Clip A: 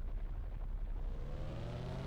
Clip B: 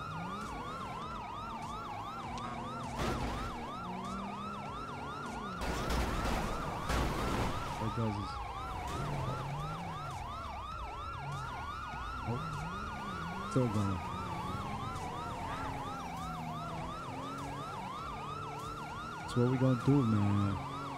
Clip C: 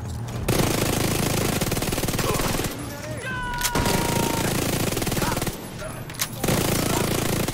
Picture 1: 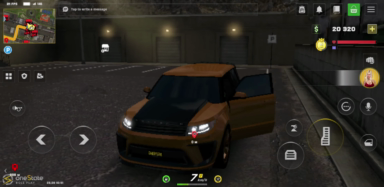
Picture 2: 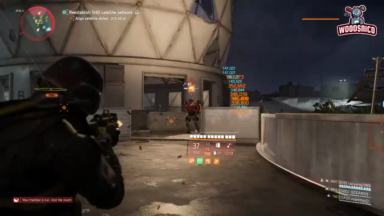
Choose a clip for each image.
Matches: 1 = A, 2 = C